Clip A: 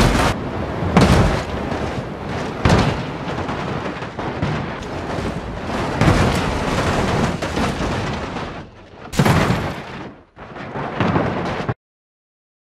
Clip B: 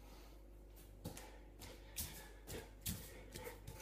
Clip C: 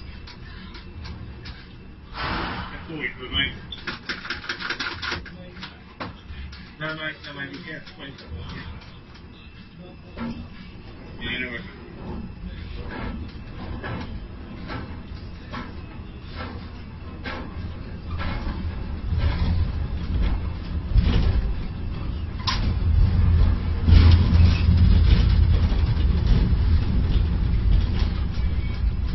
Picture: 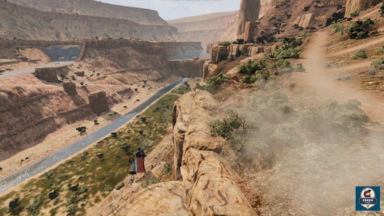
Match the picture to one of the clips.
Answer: A